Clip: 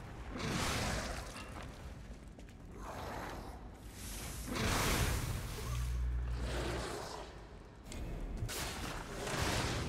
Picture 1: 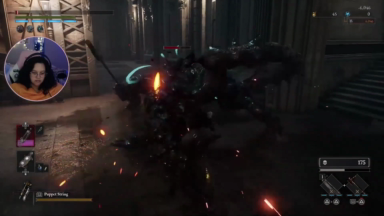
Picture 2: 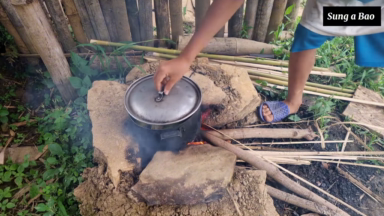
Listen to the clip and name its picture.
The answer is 1